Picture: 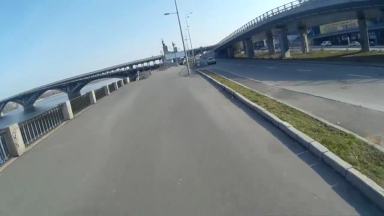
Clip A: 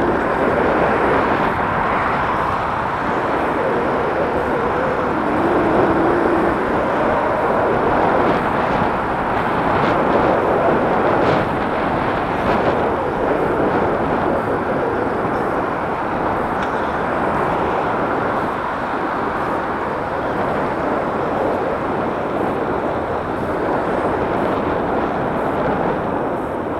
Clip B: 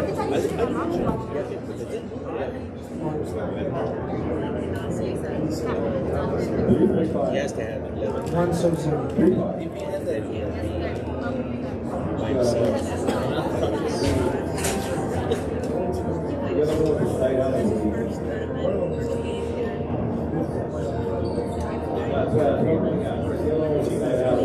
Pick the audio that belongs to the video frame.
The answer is A